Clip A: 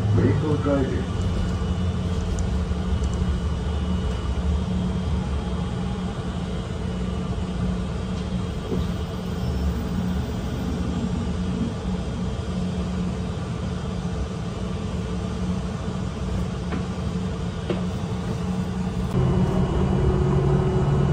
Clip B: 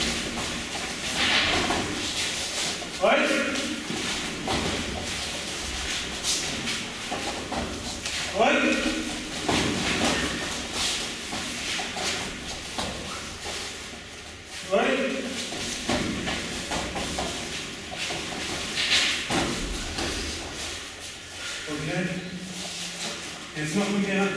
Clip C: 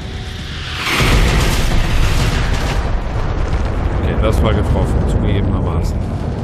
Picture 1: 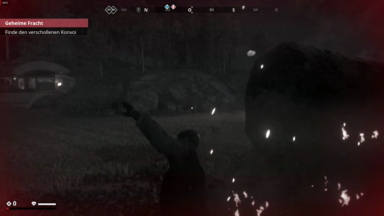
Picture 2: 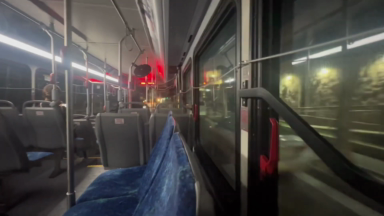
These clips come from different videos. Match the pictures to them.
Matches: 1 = C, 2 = A